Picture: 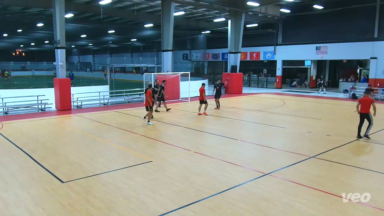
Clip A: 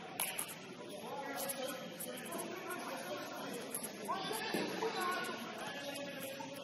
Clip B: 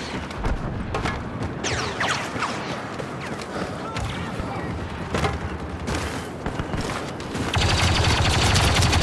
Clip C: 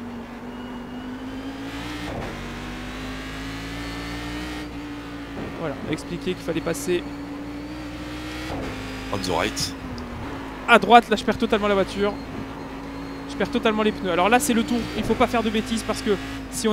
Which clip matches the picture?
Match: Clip A